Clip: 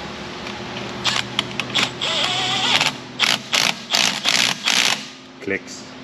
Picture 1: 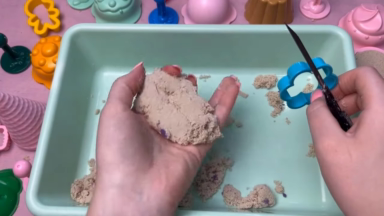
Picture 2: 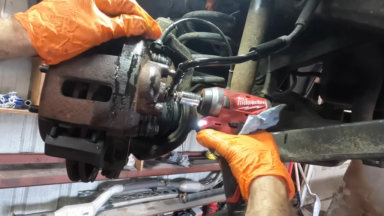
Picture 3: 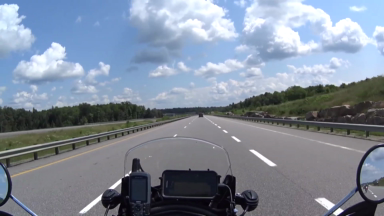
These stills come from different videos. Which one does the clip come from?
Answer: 2